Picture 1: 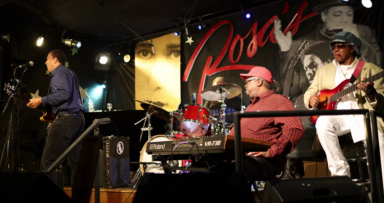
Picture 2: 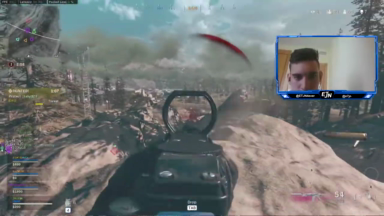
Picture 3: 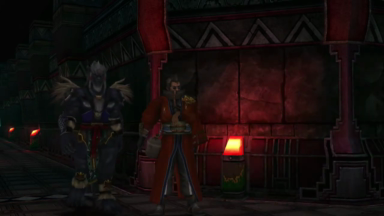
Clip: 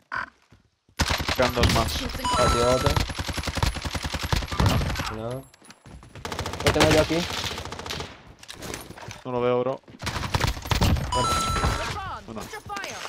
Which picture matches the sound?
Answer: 2